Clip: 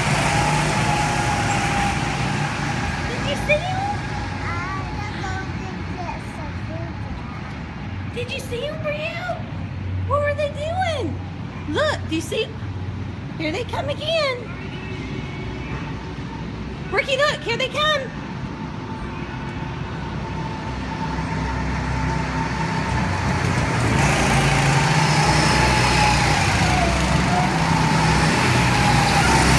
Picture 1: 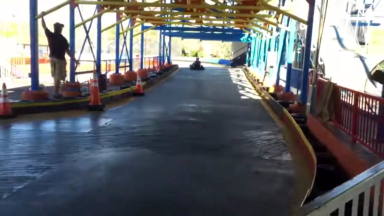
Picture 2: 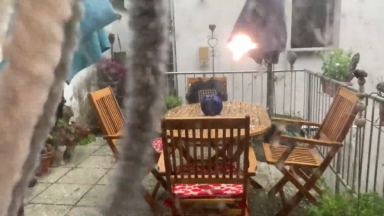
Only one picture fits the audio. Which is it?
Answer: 1